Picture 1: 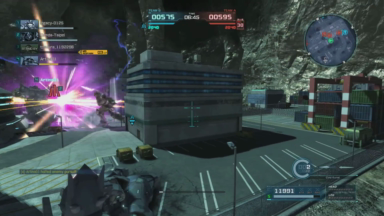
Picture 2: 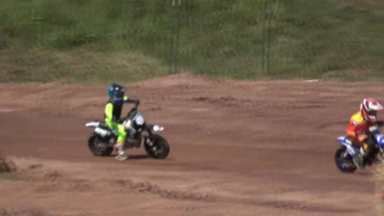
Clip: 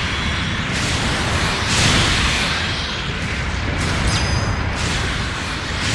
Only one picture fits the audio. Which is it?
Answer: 1